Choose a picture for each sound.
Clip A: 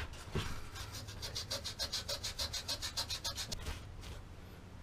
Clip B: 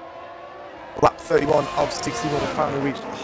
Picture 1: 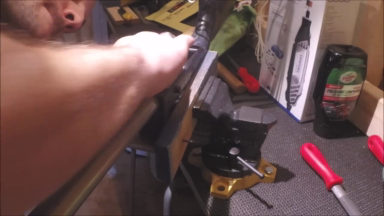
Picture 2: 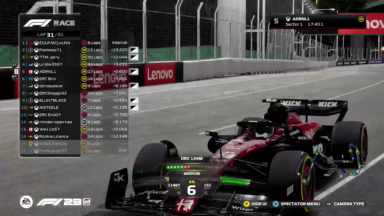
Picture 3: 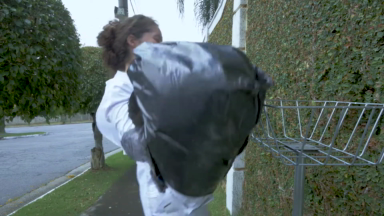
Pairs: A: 1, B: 2